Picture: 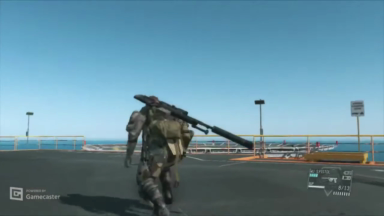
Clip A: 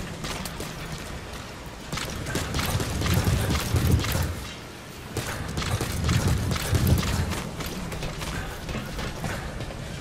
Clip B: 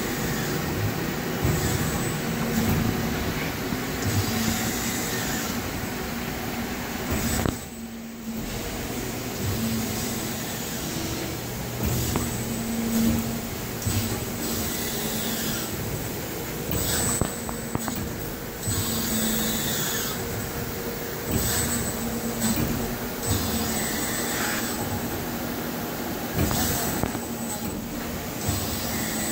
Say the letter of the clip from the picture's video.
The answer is A